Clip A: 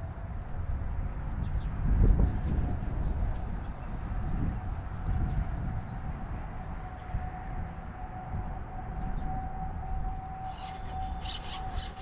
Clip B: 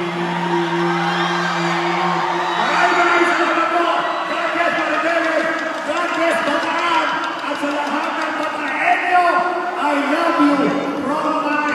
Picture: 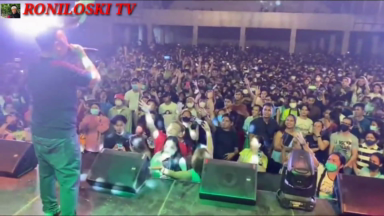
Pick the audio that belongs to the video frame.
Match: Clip B